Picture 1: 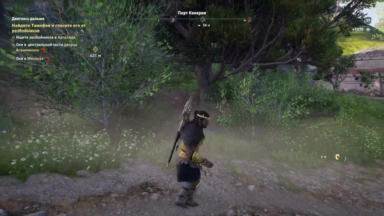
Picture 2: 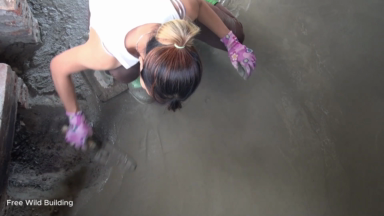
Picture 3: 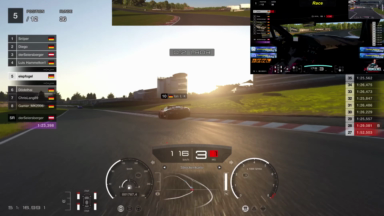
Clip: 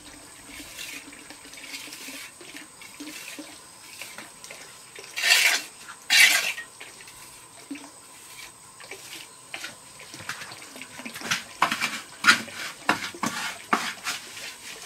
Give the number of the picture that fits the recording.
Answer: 2